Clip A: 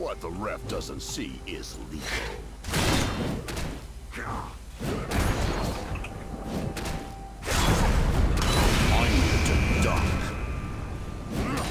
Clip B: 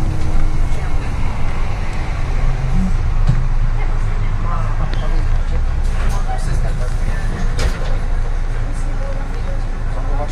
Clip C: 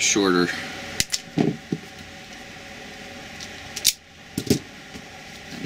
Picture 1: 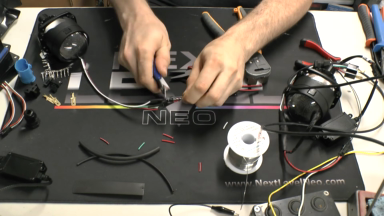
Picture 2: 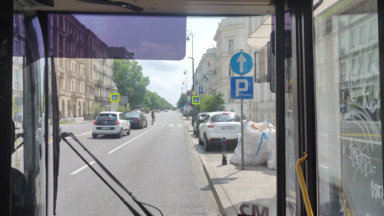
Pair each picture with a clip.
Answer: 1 C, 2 B